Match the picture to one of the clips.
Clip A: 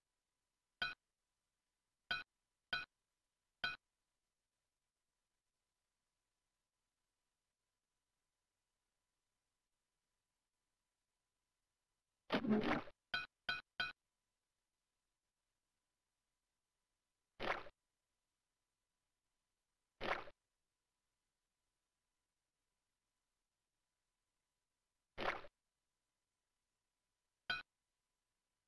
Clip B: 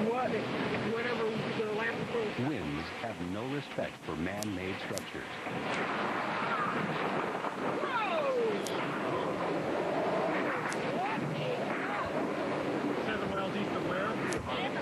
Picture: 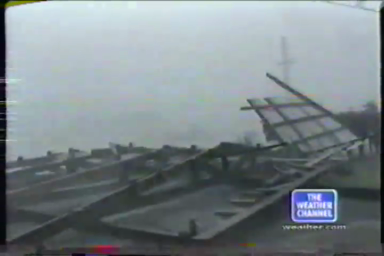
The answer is B